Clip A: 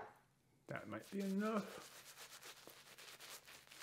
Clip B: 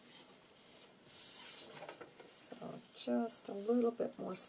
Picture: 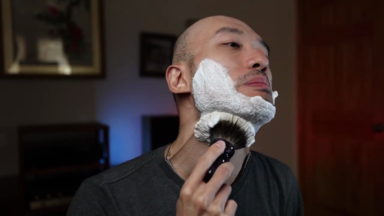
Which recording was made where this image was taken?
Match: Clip A